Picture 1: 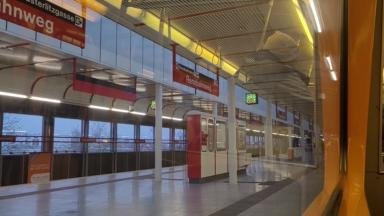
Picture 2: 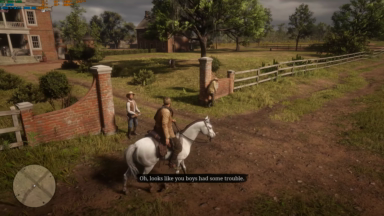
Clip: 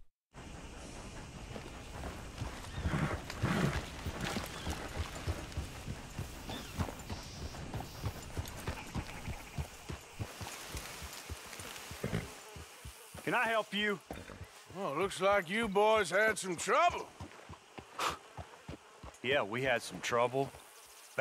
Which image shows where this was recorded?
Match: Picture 2